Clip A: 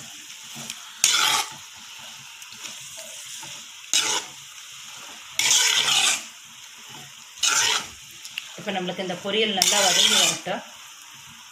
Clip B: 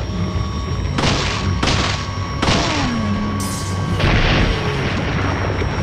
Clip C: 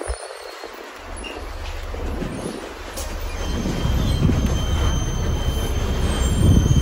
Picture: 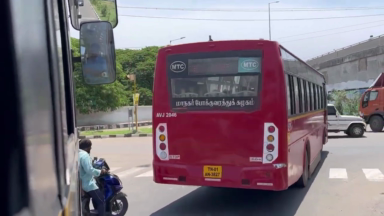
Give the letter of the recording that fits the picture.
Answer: C